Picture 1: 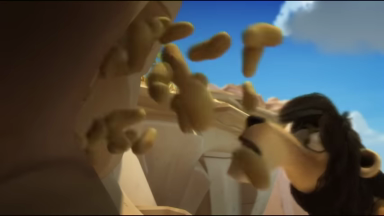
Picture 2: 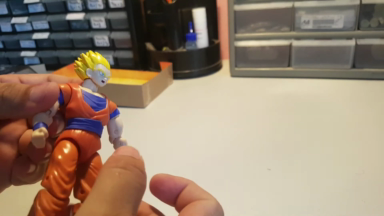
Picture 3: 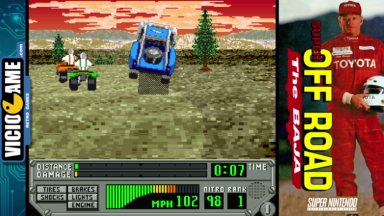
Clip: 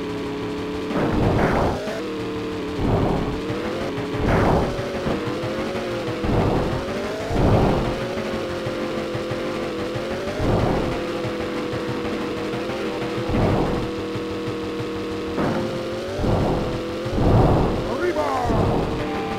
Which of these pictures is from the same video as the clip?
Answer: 3